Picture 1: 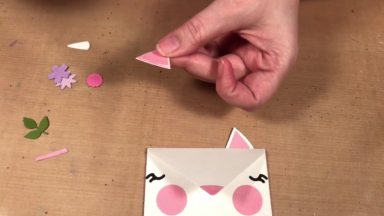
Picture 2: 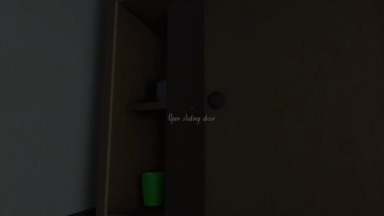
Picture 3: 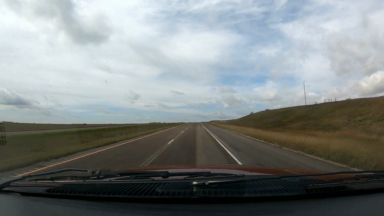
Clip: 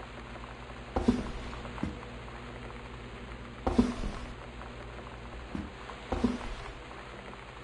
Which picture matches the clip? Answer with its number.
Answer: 2